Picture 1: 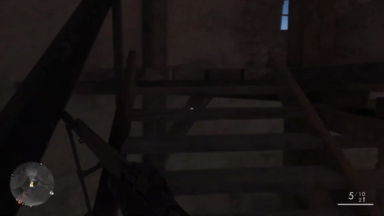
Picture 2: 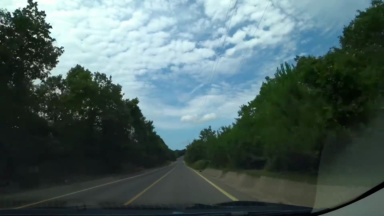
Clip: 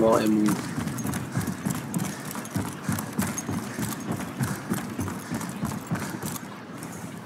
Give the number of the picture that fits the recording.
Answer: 1